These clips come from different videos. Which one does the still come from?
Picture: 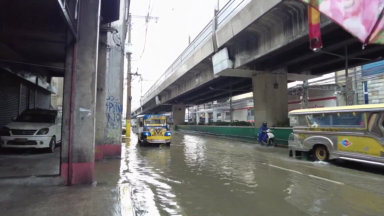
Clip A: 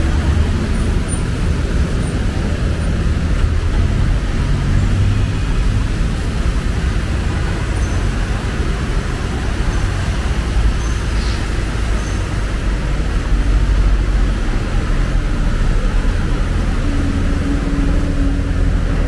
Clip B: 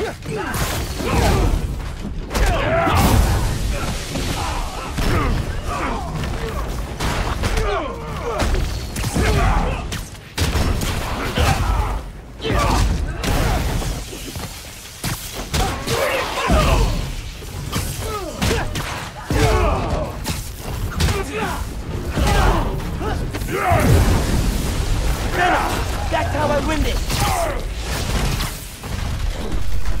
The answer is A